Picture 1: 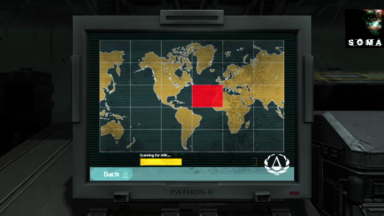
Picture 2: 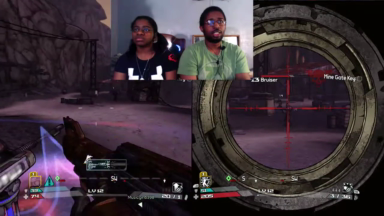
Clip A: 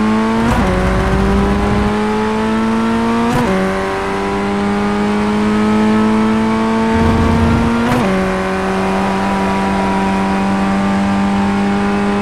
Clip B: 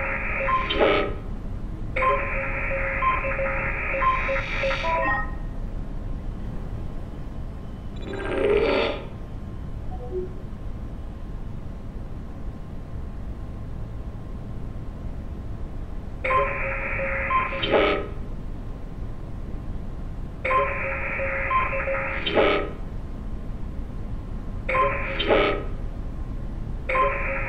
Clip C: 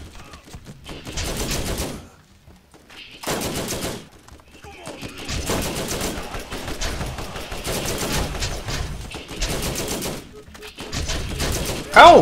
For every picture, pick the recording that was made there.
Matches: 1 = B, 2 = C